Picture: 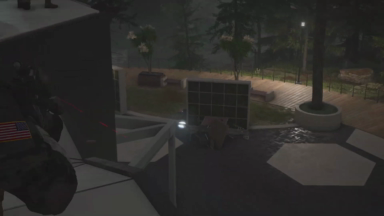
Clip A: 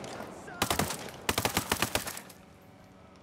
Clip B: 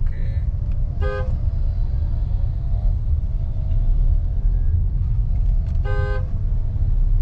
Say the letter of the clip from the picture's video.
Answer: A